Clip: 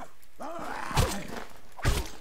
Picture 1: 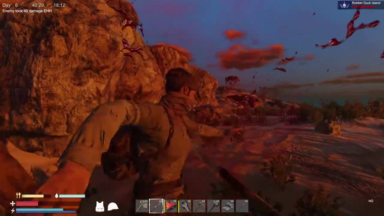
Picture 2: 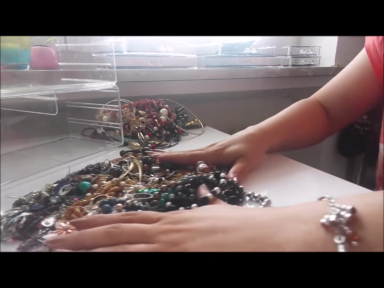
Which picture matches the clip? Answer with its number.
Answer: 1